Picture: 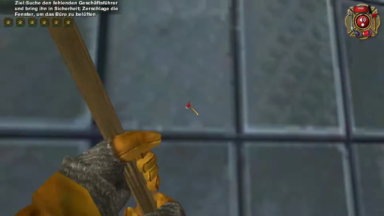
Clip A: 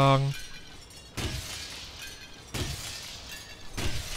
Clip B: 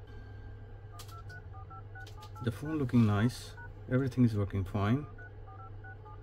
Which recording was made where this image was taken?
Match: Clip A